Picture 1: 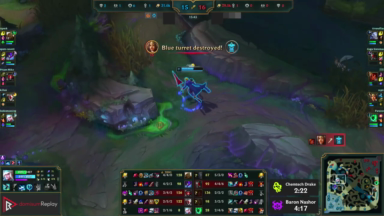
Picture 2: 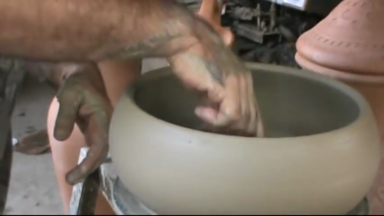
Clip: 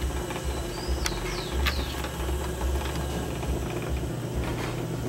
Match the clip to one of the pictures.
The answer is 2